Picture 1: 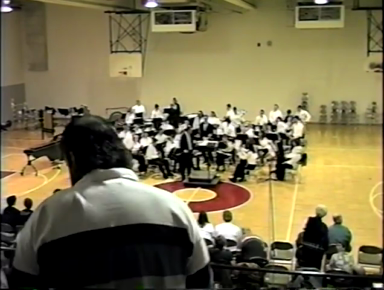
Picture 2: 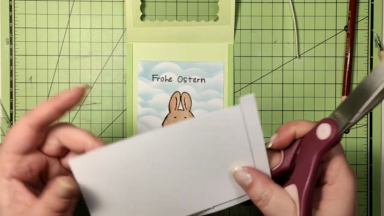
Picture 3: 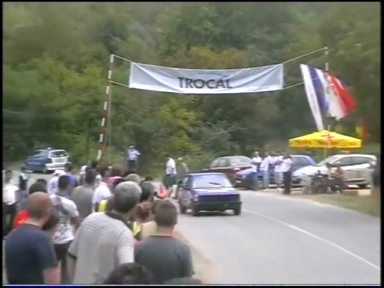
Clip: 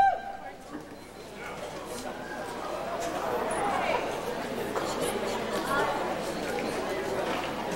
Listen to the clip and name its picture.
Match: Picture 1